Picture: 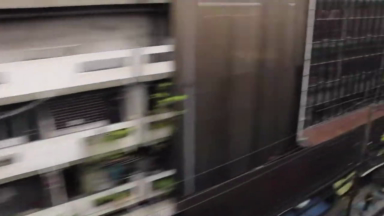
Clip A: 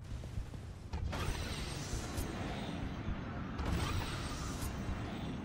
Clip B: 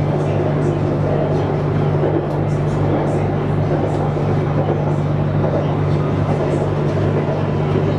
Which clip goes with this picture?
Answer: B